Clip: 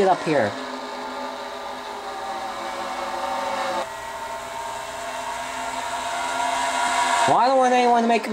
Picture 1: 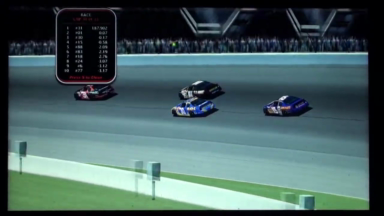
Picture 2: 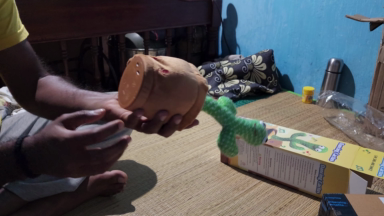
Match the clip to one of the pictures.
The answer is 1